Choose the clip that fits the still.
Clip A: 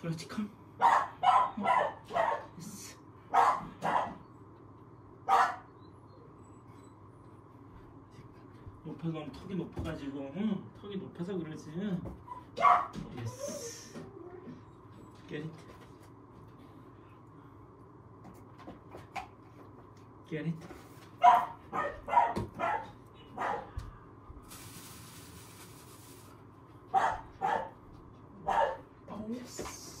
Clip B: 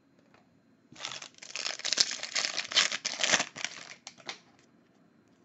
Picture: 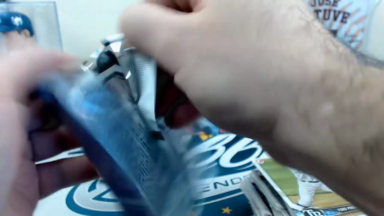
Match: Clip B